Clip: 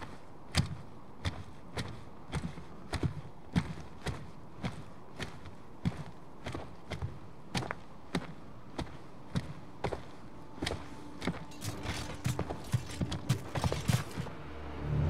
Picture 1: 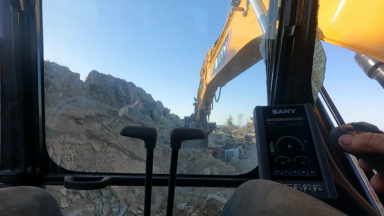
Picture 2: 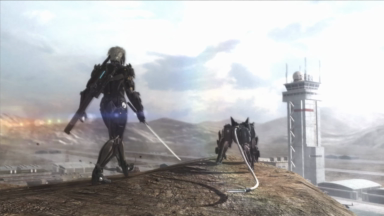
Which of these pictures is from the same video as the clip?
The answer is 2